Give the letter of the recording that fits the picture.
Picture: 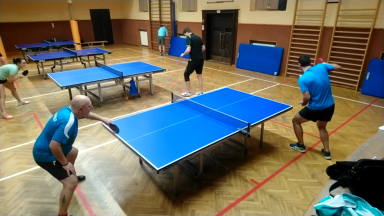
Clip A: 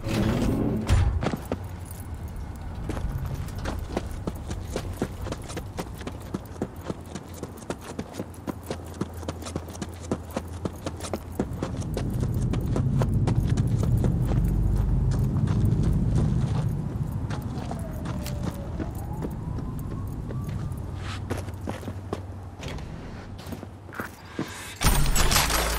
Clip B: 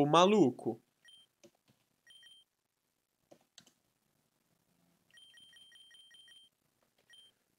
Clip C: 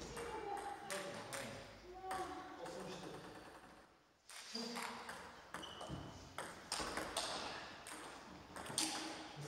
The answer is C